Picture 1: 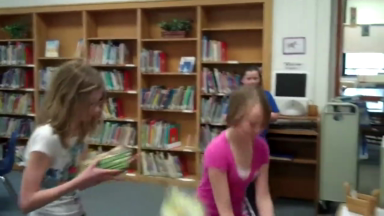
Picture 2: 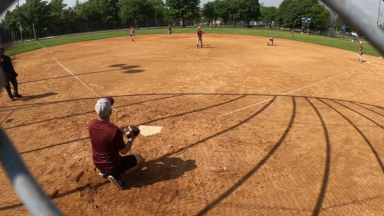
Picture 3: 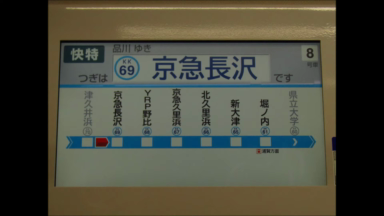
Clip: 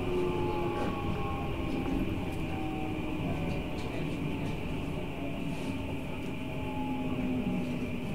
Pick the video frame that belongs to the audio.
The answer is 3